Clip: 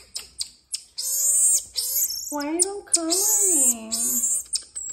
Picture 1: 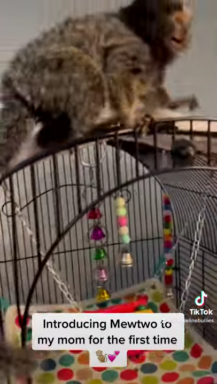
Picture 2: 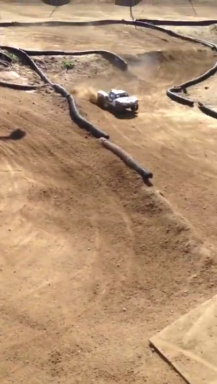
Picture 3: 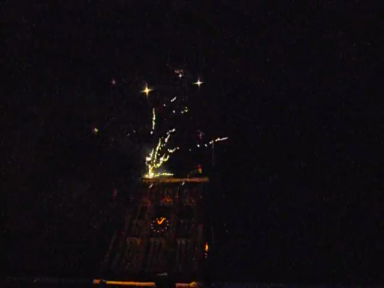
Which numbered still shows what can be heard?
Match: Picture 1